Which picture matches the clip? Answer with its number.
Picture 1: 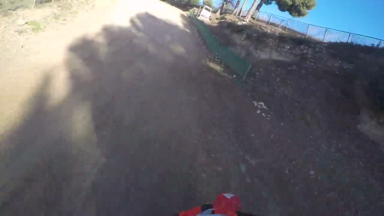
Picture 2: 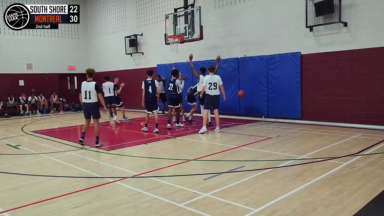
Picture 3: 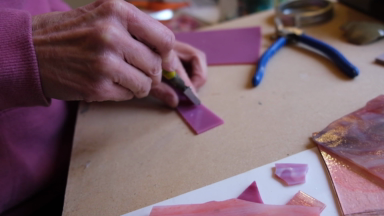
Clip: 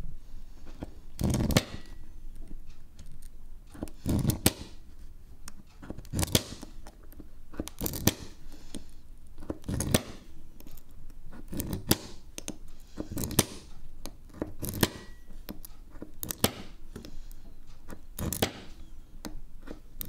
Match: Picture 3